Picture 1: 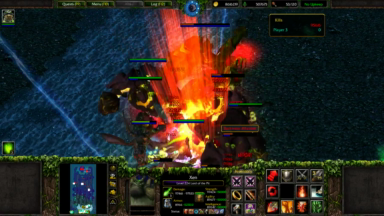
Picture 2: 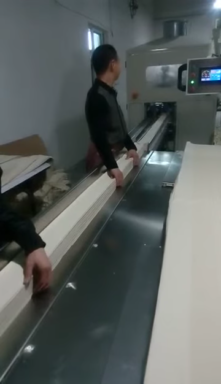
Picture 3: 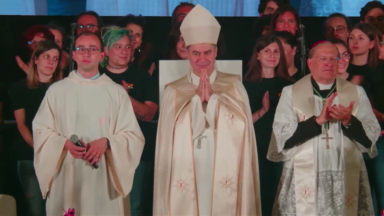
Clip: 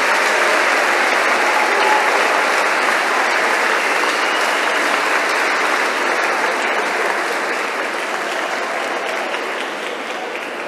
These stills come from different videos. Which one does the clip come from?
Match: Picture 3